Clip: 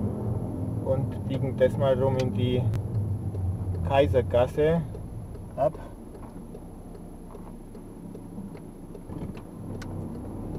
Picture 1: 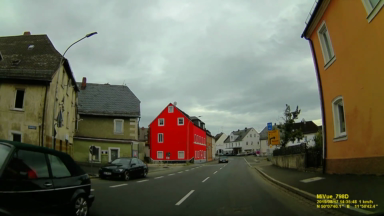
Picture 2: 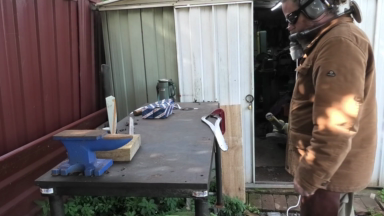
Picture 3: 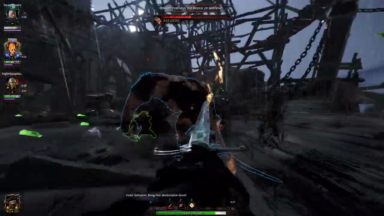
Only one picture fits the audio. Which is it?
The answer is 1